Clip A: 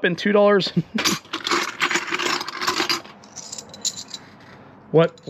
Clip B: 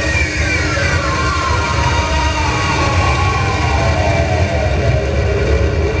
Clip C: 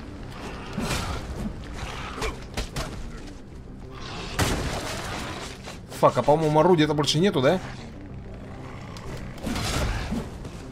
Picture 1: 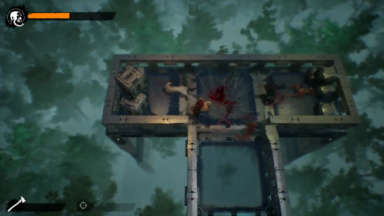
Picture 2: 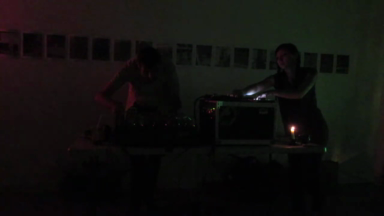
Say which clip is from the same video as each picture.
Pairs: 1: C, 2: B